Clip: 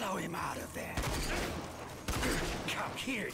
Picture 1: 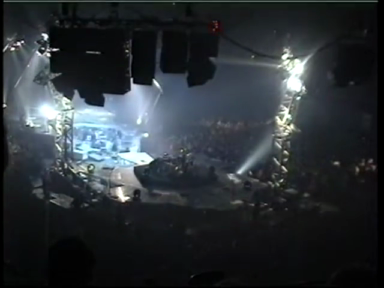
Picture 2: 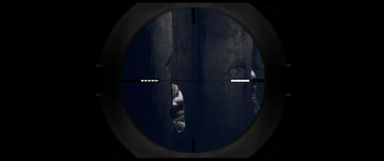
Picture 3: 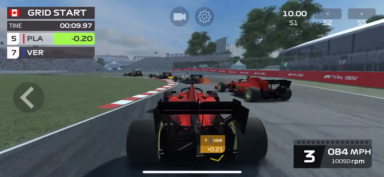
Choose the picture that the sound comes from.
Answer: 2